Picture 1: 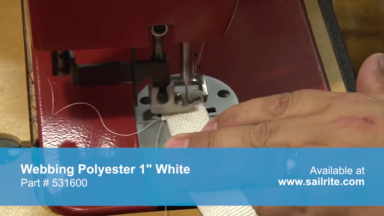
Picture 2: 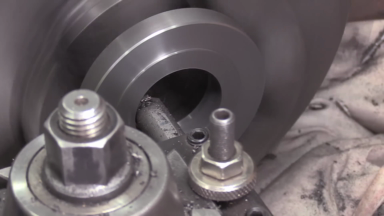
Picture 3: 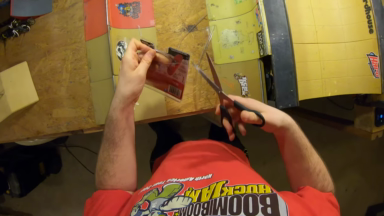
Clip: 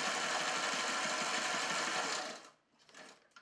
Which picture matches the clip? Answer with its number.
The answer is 1